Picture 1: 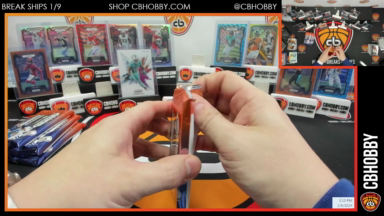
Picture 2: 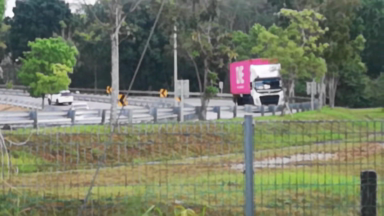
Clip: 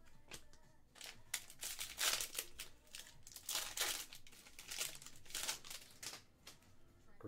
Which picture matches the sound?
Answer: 1